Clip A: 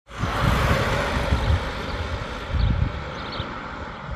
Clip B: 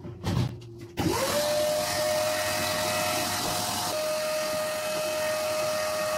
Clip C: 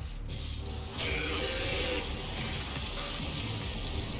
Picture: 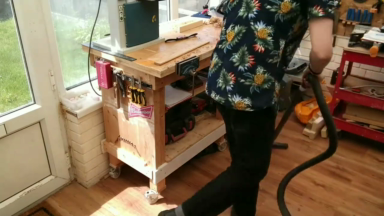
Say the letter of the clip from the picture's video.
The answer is B